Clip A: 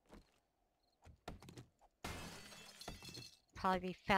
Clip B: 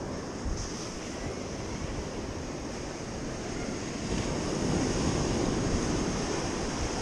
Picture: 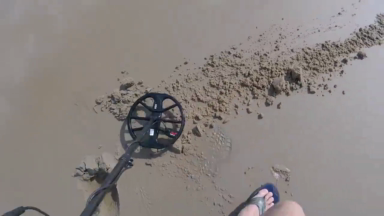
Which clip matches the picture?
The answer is B